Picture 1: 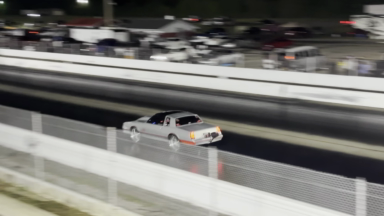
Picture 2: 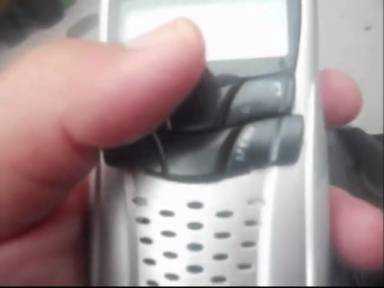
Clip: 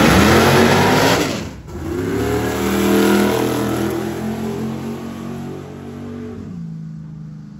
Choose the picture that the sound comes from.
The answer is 1